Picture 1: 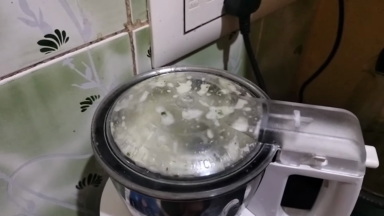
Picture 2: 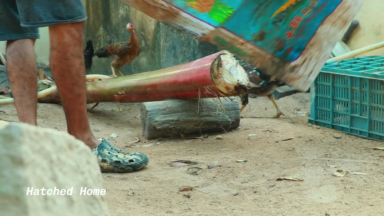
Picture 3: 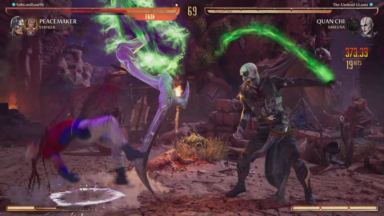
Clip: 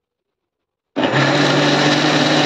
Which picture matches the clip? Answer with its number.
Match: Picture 1